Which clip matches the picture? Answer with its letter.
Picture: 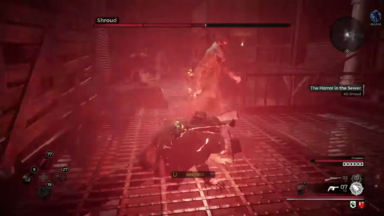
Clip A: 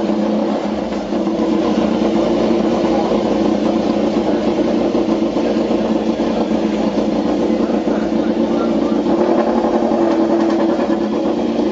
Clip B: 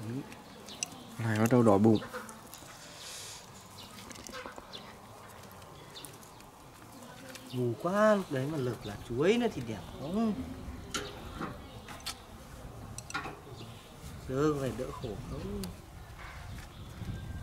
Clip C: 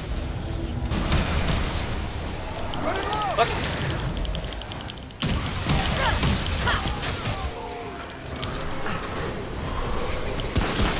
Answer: C